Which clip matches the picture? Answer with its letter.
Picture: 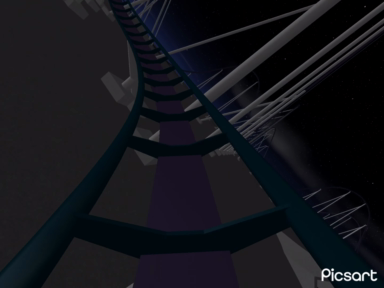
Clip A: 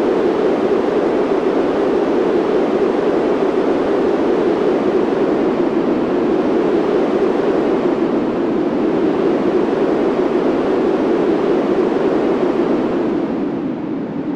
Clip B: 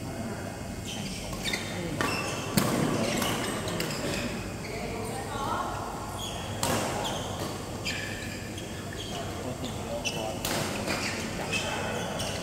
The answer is A